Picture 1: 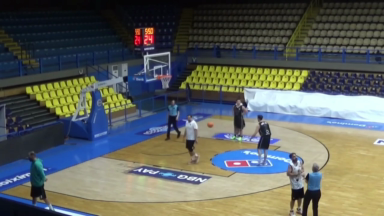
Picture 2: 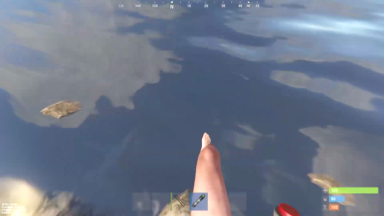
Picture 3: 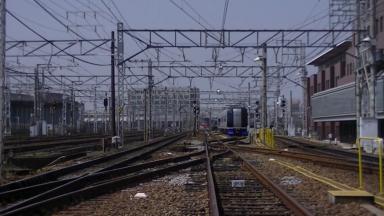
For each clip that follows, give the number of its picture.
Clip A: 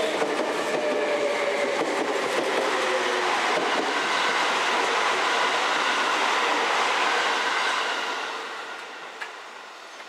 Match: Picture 3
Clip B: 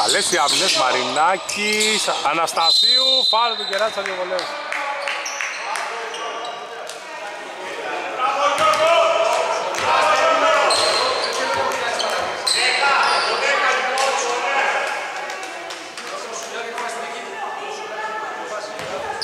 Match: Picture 1